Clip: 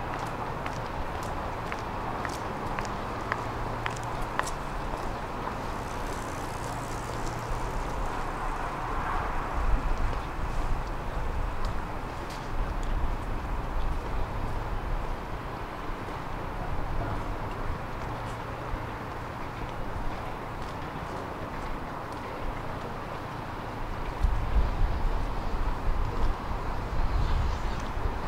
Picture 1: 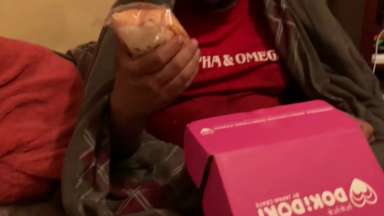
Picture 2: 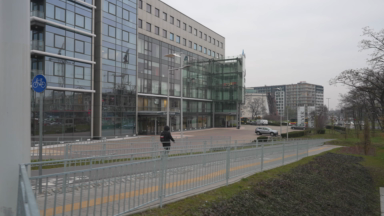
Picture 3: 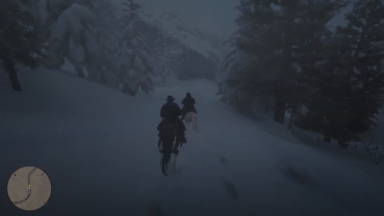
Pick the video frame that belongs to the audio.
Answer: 2